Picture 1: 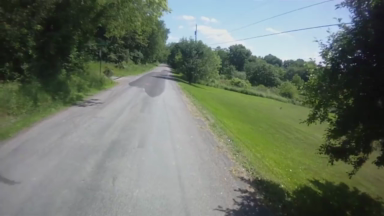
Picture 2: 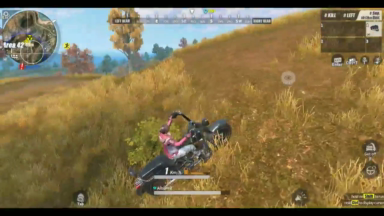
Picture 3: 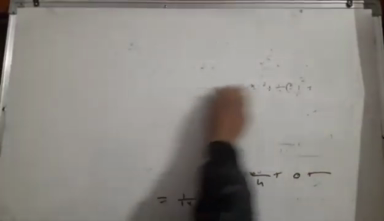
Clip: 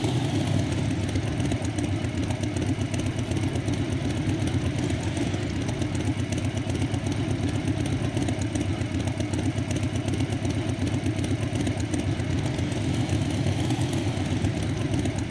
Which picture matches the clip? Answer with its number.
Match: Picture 2